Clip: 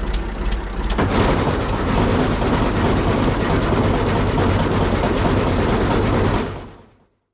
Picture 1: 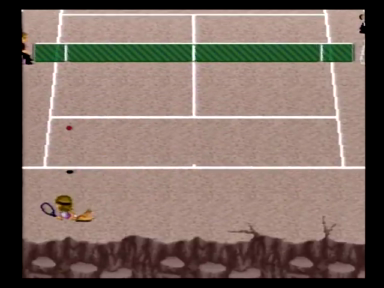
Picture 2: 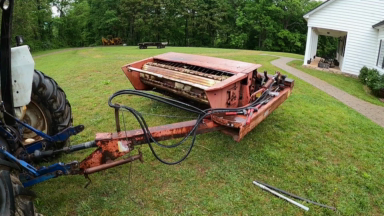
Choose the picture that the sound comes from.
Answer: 2